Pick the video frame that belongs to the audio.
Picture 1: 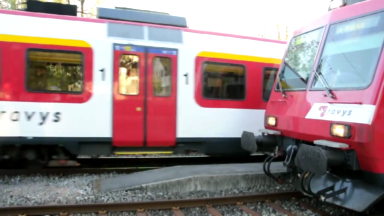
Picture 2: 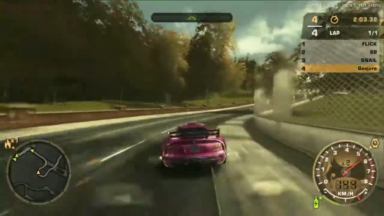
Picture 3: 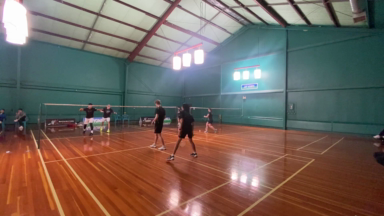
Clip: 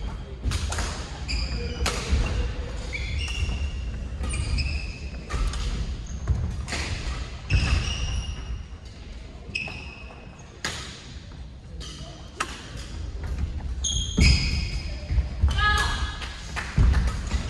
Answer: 3